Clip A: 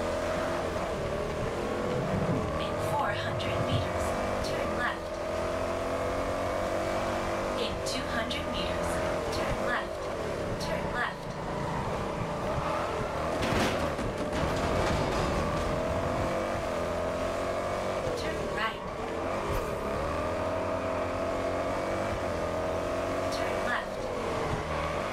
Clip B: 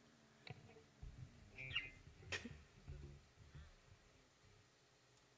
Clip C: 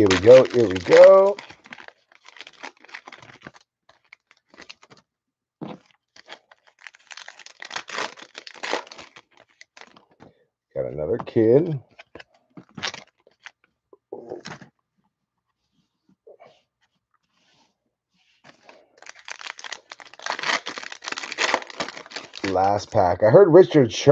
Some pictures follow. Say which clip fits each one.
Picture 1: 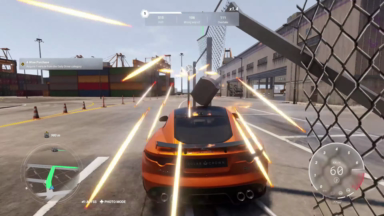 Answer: A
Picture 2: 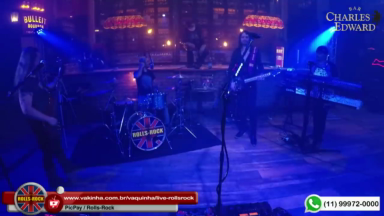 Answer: B